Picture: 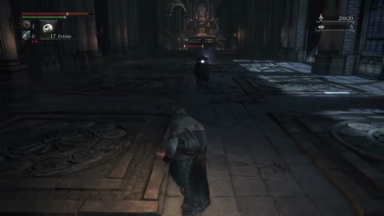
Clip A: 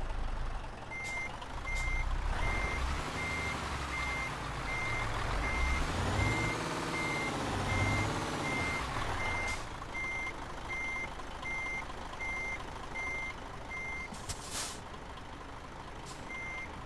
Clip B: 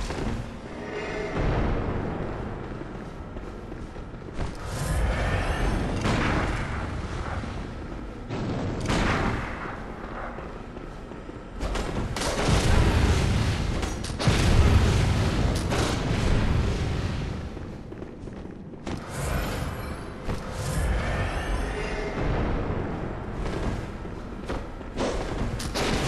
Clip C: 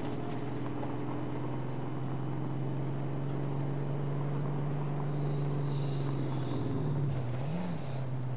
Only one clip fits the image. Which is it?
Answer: B